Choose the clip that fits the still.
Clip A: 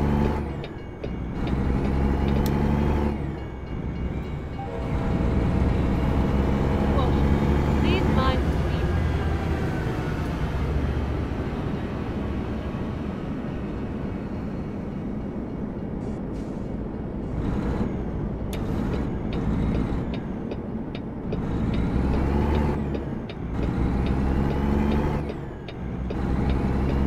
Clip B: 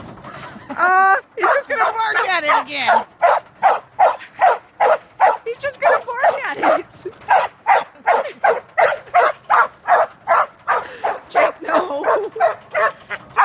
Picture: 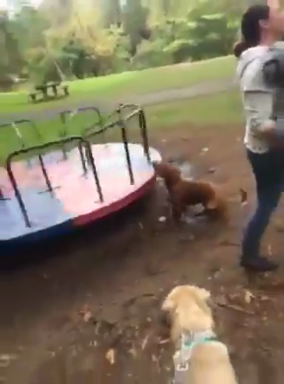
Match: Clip B